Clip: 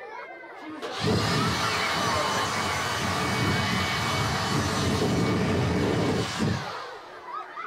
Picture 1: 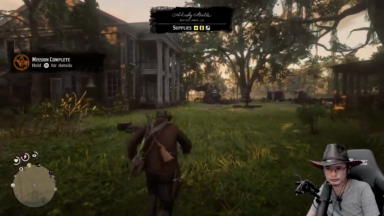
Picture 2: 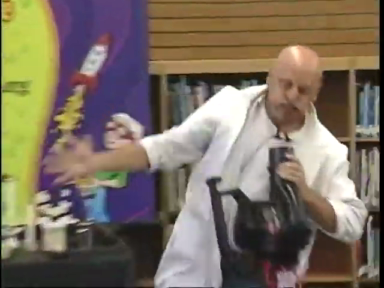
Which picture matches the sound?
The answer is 2